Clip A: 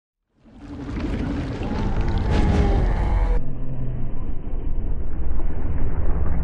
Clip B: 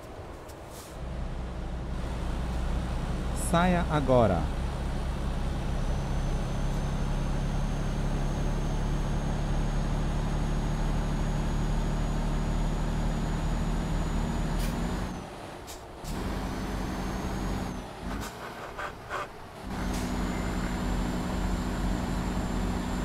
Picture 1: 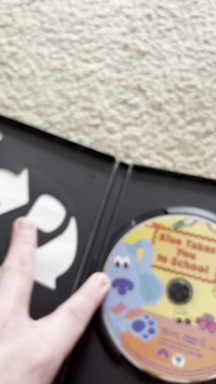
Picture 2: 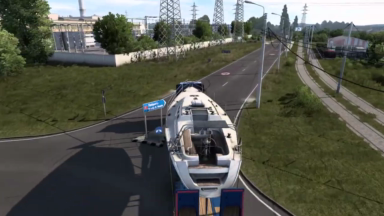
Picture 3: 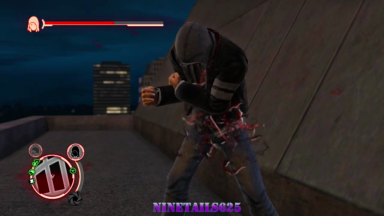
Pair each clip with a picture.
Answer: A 3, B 2